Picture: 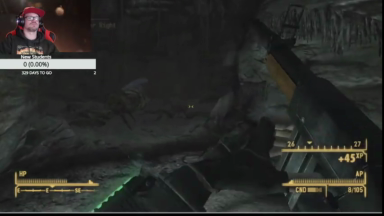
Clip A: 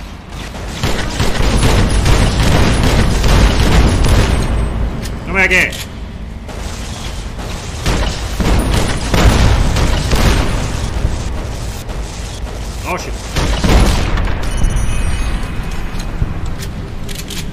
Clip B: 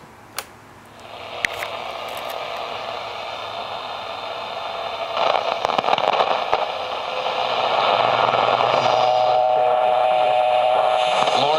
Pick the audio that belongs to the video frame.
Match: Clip A